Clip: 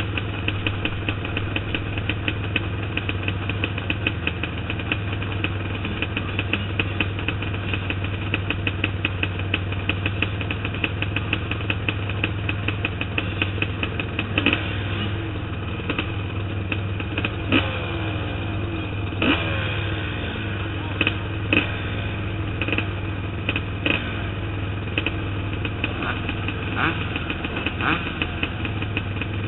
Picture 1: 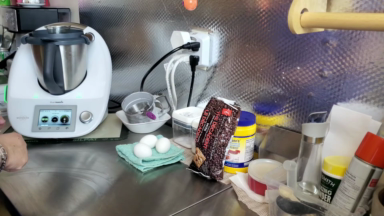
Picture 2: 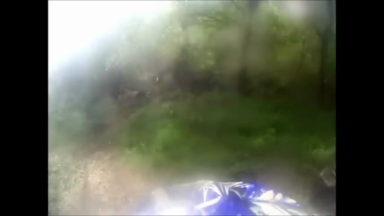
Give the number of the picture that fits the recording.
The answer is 2